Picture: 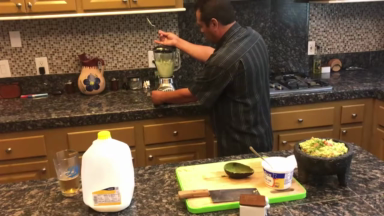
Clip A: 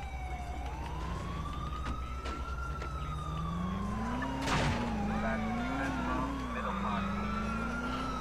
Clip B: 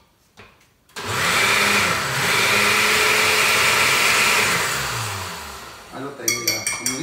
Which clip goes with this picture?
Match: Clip B